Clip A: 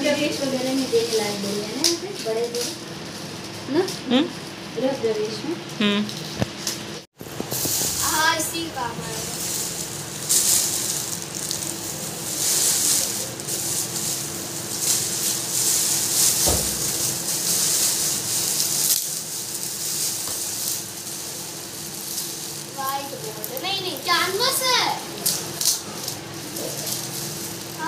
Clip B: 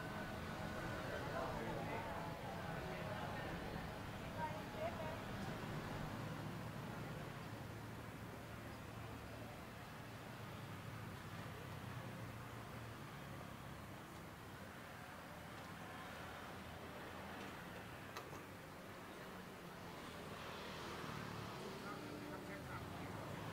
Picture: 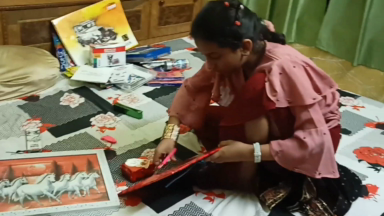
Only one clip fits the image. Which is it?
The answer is A